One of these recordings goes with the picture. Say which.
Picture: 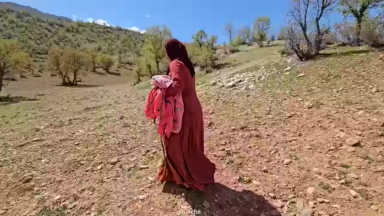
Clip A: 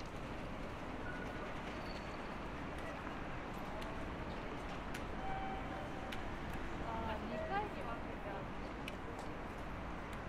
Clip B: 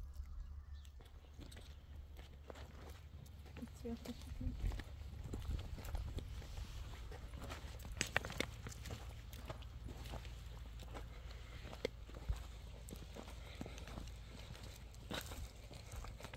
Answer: B